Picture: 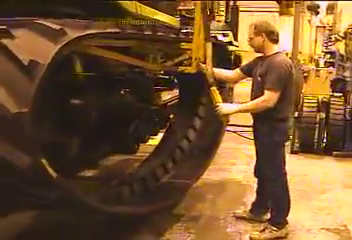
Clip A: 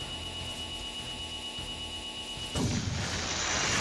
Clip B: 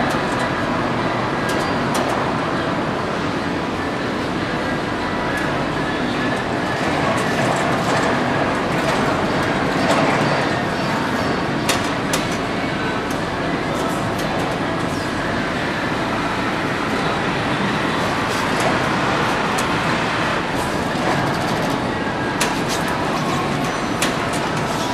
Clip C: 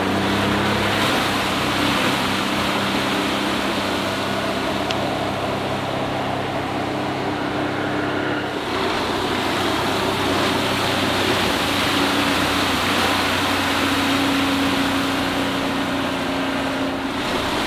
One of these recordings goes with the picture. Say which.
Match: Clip B